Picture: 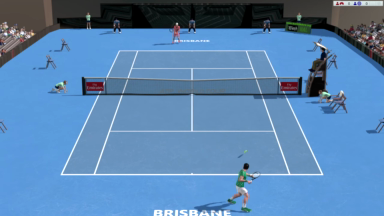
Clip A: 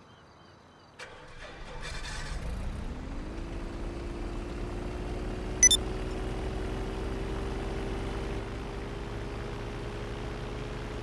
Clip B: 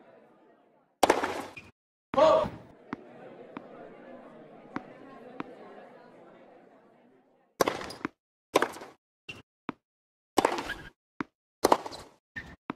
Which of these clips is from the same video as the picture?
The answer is B